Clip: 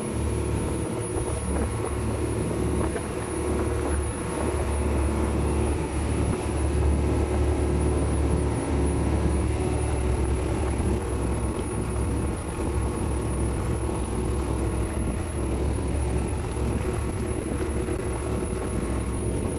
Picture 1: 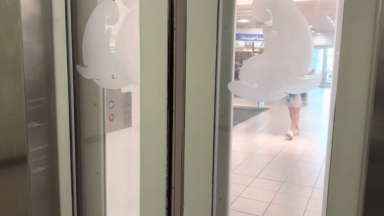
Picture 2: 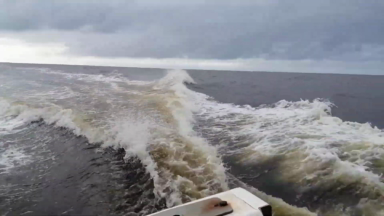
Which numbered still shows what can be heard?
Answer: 2